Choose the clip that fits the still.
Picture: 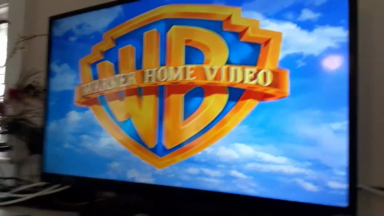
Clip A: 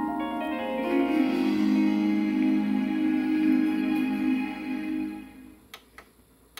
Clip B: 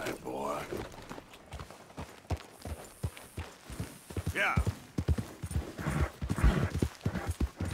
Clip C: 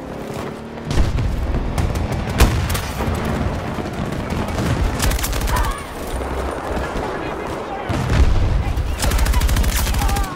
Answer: A